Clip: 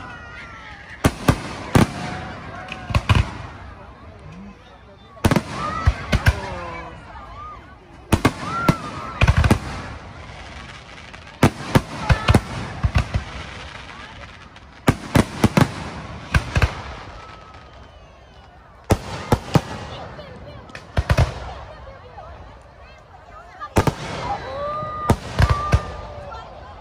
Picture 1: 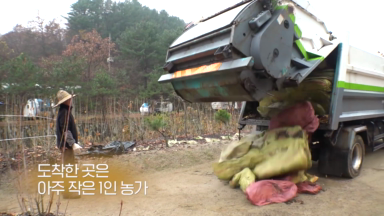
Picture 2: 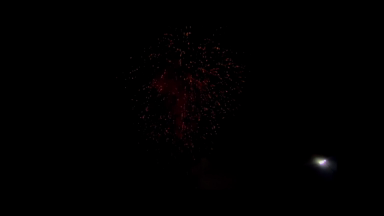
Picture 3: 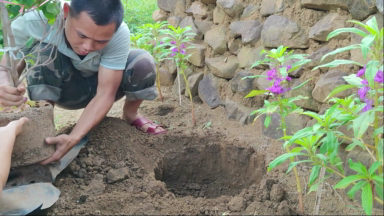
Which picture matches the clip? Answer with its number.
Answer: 2